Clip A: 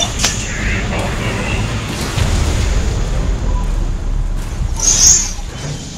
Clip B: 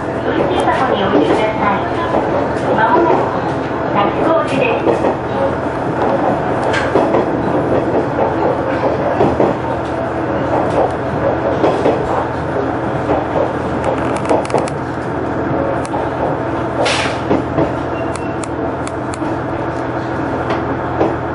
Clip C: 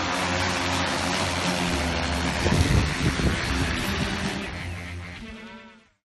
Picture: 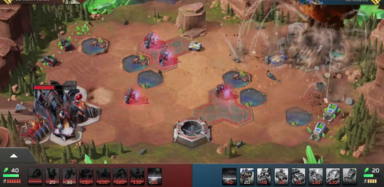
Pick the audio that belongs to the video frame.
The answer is A